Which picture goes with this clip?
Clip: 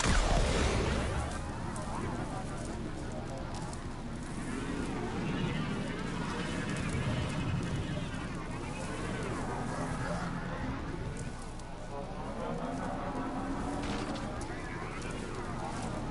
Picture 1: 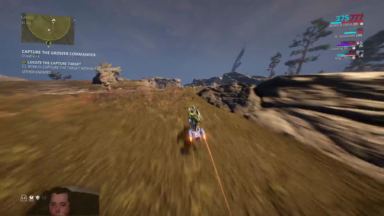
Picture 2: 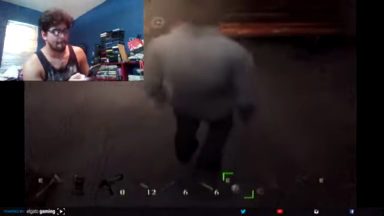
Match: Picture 1